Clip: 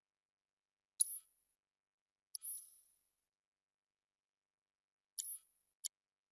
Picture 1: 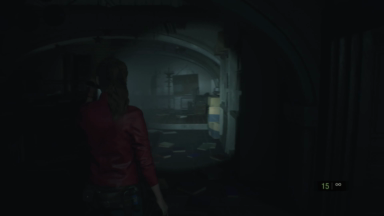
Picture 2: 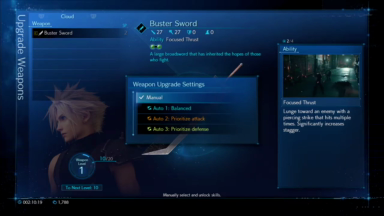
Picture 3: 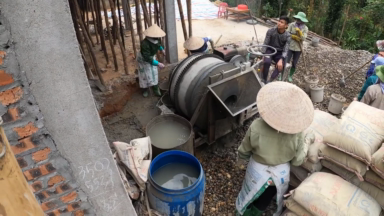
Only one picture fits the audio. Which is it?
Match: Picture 2